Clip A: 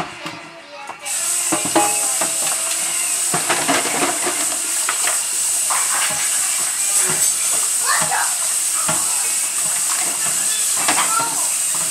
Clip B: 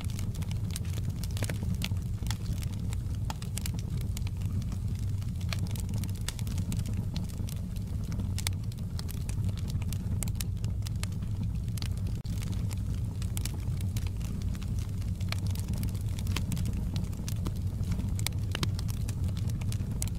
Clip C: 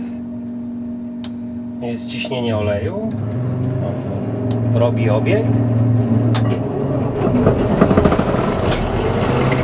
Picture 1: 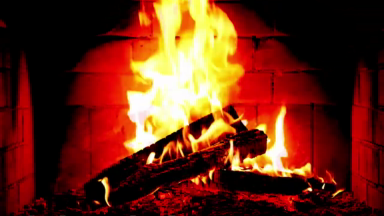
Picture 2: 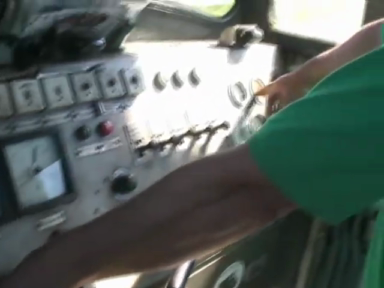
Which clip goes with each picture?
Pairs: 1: B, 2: C